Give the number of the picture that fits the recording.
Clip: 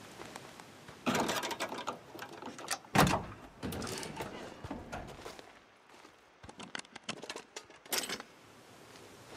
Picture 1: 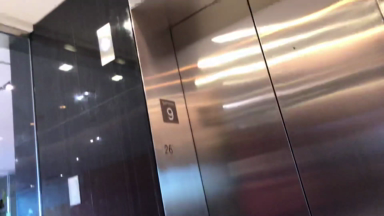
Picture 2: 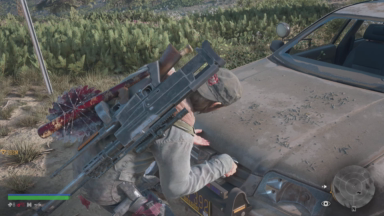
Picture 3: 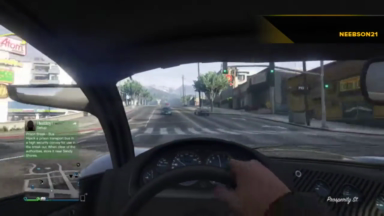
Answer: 2